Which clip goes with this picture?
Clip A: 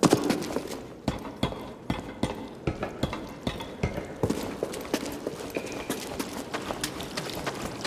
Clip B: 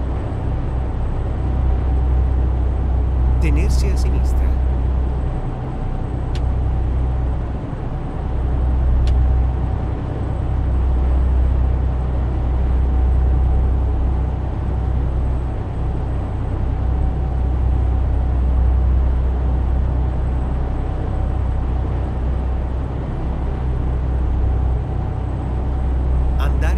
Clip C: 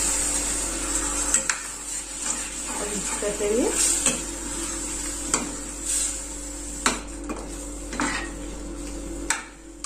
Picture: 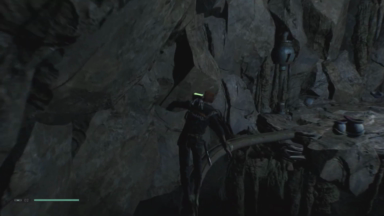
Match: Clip A